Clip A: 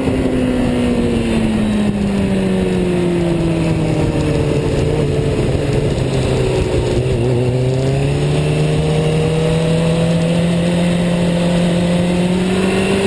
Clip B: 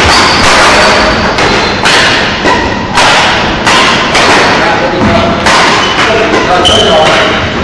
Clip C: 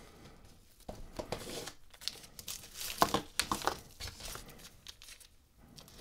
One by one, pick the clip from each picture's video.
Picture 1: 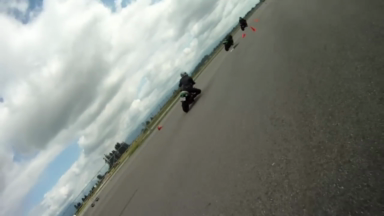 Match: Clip A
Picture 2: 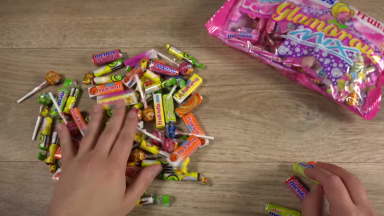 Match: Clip C